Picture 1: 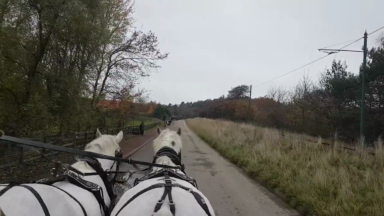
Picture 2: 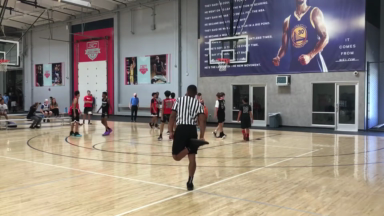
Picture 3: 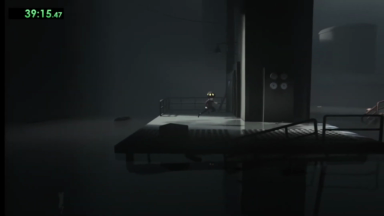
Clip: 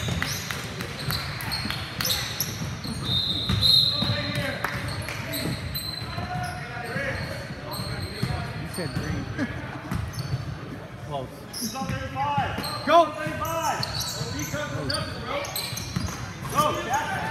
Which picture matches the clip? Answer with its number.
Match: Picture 2